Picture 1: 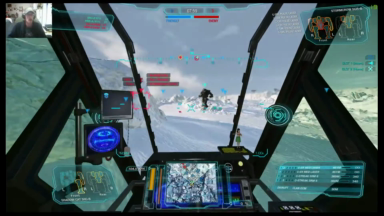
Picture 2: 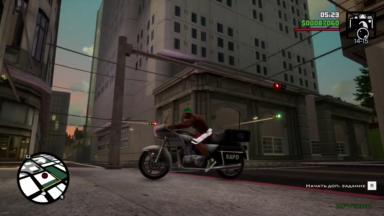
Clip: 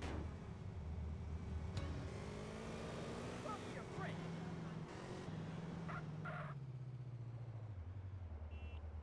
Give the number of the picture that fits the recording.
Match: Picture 2